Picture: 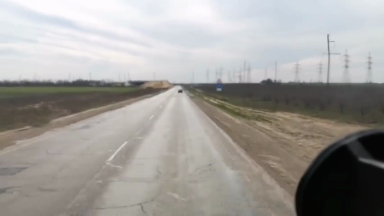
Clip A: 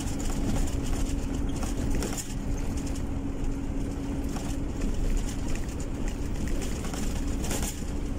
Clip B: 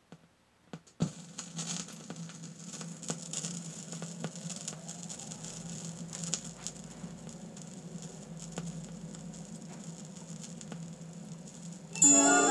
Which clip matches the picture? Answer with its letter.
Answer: A